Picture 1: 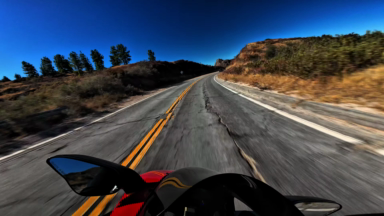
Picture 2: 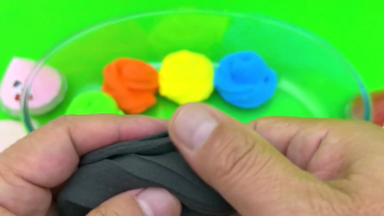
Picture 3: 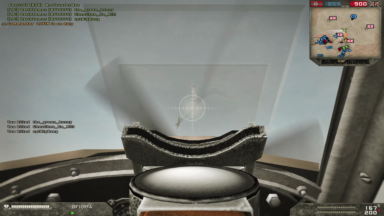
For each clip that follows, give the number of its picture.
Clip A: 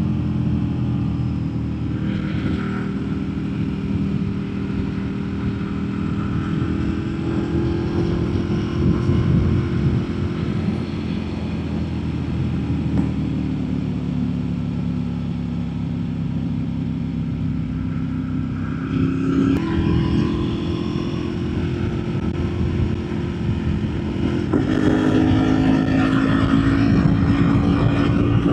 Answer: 1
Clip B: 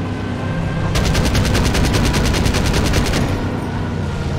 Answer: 3